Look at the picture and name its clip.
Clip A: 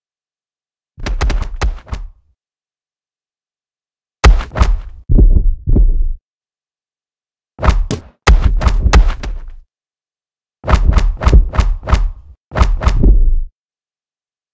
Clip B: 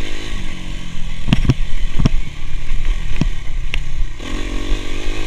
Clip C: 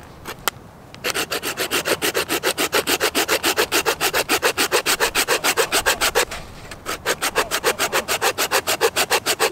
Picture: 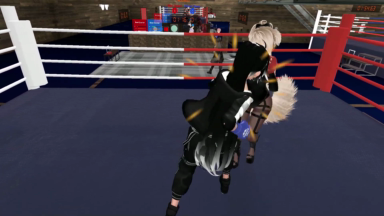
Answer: A